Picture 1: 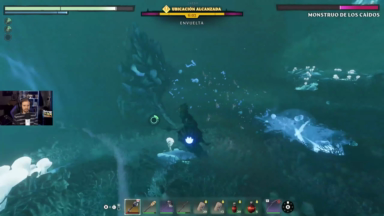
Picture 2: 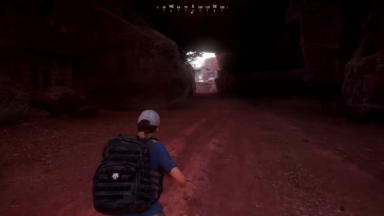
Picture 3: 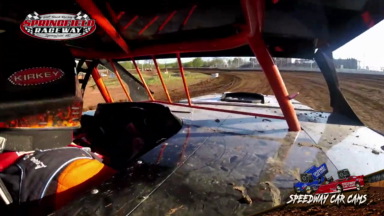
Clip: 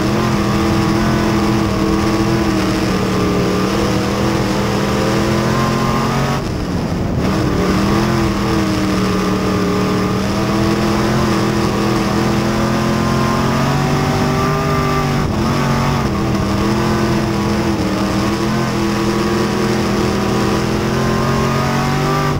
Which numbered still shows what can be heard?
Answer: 3